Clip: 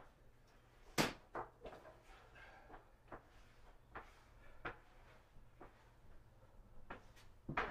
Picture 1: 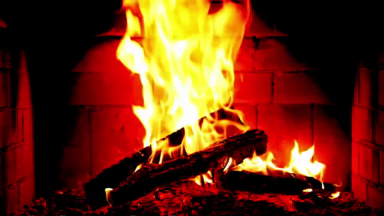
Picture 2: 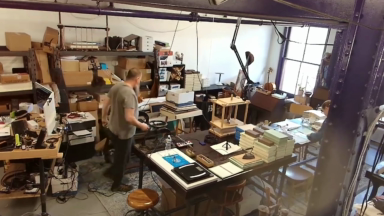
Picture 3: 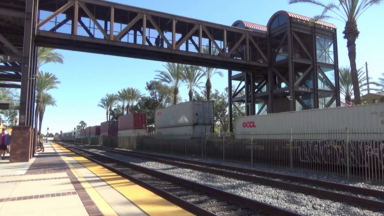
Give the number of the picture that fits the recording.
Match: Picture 2